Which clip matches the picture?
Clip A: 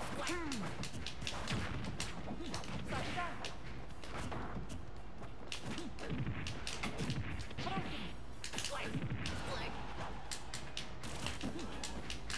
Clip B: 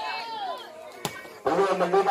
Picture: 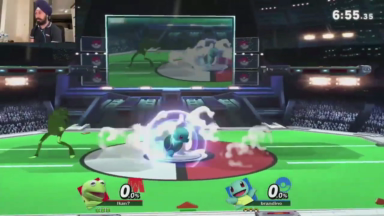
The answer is A